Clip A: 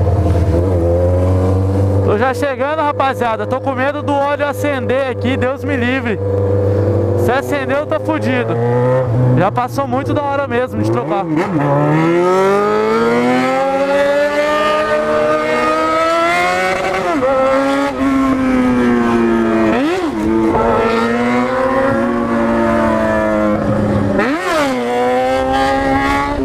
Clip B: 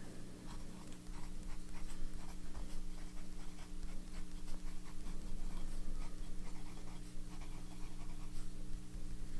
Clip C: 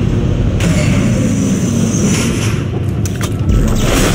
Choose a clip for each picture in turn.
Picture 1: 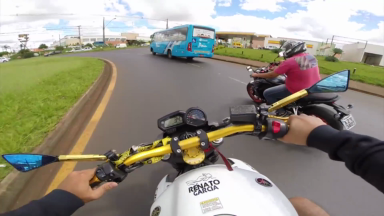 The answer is A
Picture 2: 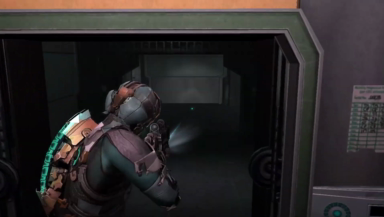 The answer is C